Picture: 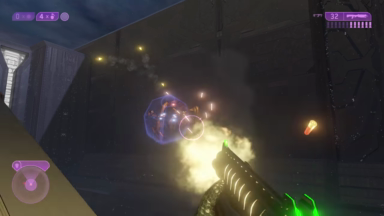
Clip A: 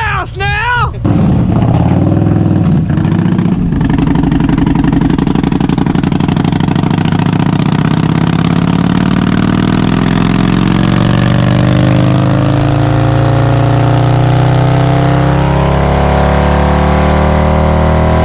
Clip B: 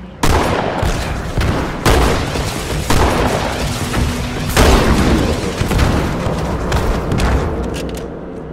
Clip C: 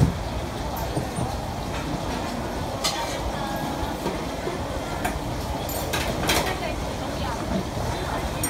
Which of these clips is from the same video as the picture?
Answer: B